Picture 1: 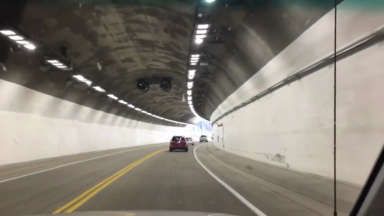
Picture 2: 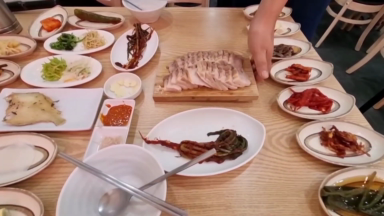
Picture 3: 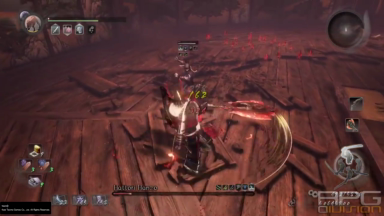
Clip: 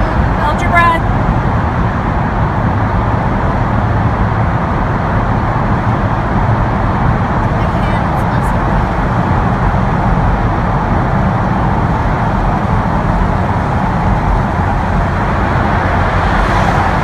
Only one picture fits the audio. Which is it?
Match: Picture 1